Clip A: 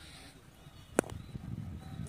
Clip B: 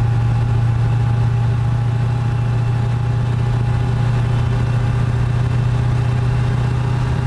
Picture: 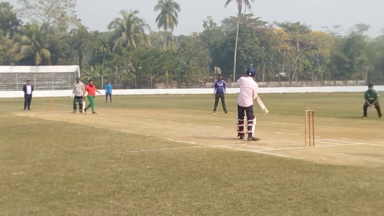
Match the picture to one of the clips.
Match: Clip A